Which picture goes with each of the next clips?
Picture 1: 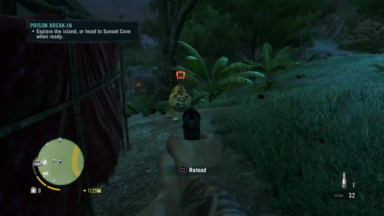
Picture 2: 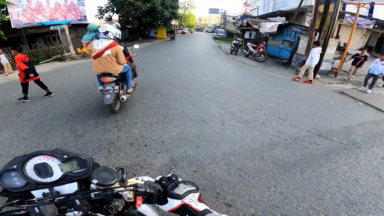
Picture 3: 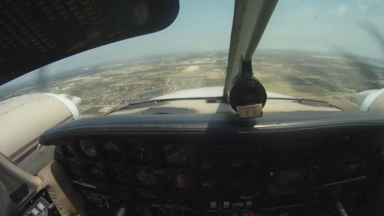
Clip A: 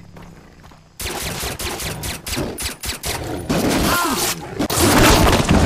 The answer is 1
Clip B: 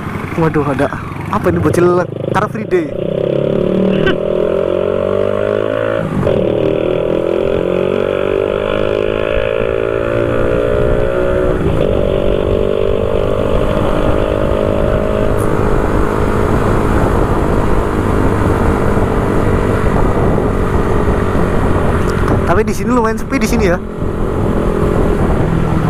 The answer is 2